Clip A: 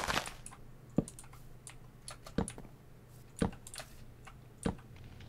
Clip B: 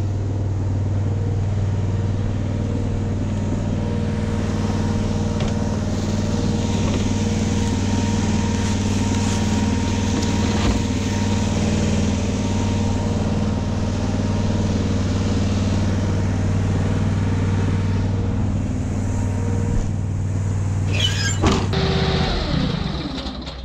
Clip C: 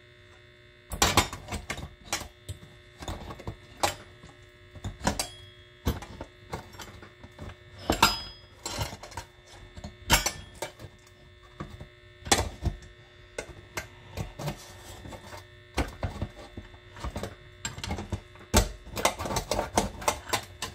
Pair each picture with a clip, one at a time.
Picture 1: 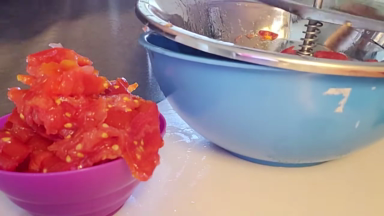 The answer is C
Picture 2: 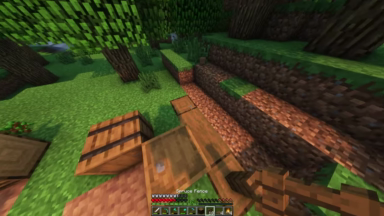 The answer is A